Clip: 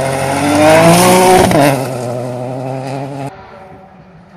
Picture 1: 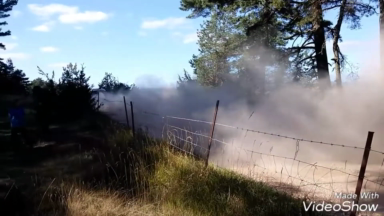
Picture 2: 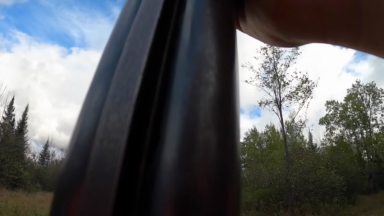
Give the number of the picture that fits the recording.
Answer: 1